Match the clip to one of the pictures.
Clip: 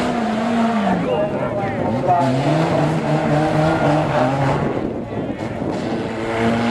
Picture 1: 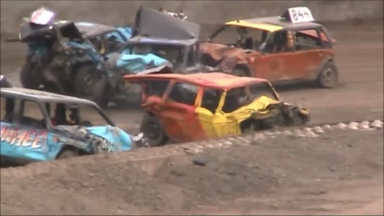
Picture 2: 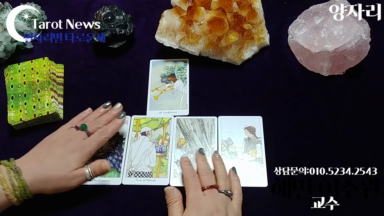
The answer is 1